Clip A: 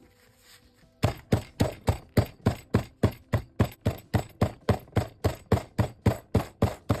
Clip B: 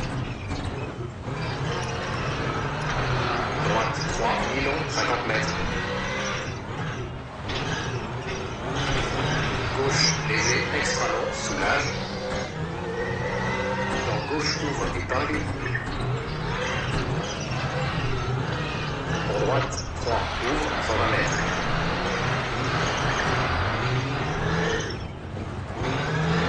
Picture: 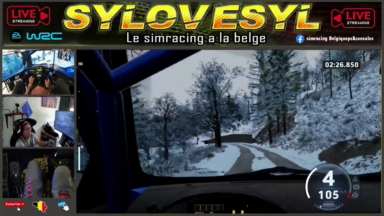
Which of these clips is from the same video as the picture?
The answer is B